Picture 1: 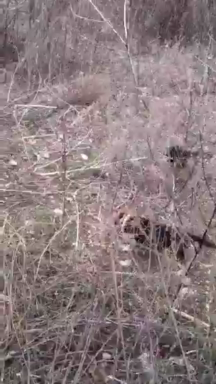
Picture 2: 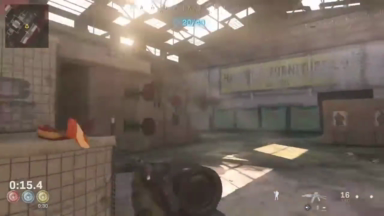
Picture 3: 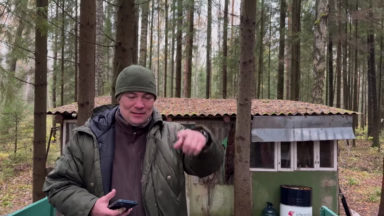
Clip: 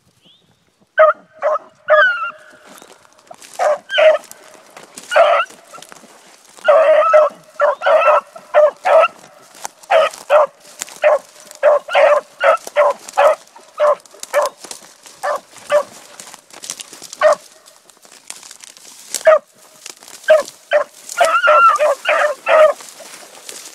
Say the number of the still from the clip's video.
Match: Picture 1